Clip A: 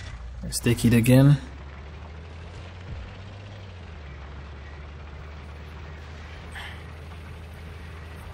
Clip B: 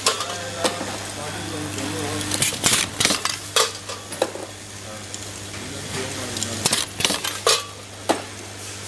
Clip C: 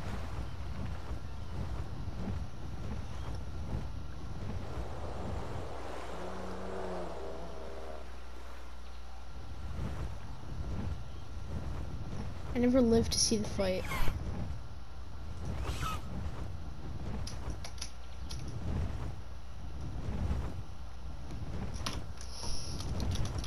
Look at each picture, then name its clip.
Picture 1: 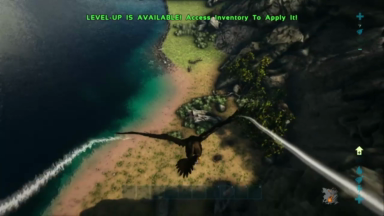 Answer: C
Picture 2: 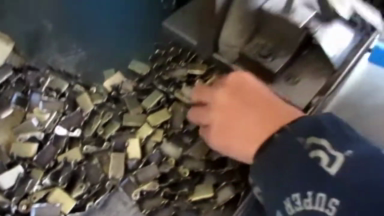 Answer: B